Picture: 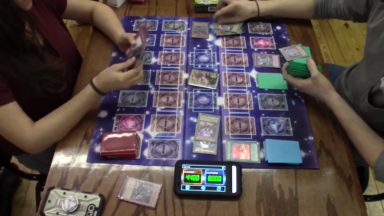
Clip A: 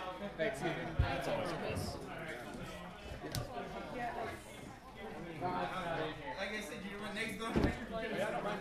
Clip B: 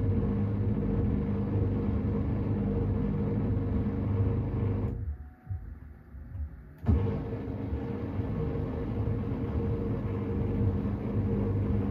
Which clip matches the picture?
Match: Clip A